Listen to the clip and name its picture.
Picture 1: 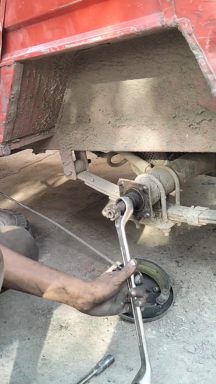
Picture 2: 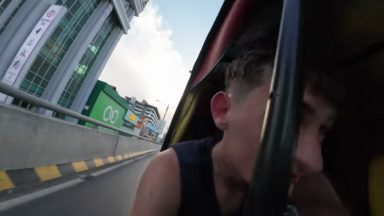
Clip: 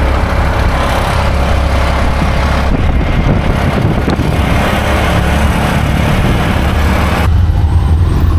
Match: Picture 2